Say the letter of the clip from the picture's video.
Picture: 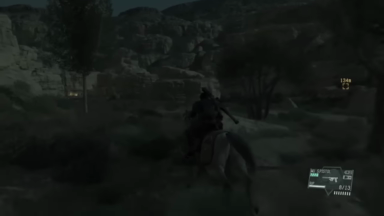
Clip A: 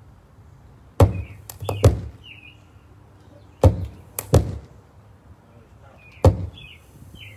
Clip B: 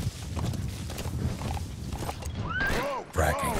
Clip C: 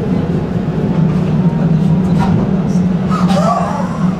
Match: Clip B